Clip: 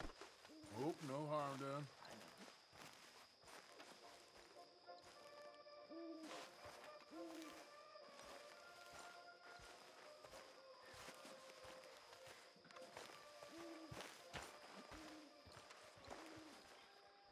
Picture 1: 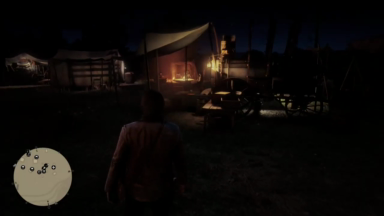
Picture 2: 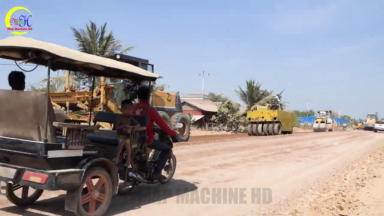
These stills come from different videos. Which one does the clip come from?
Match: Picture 1